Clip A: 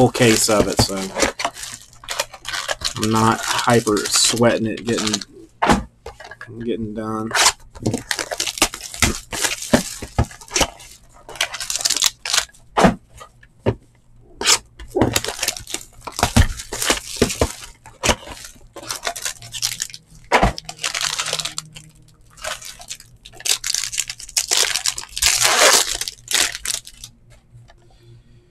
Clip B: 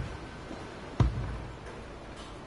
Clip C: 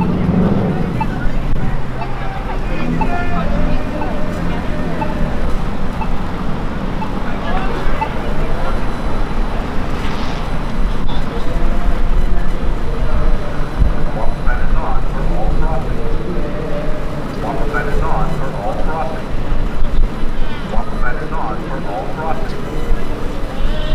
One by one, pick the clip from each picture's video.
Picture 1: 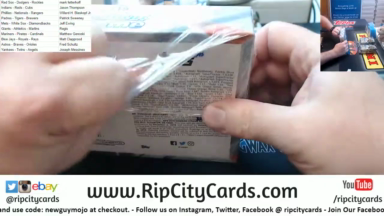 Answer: A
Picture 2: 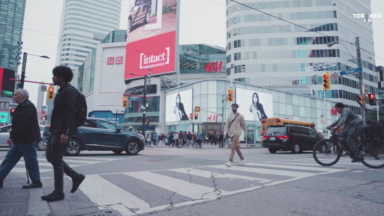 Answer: C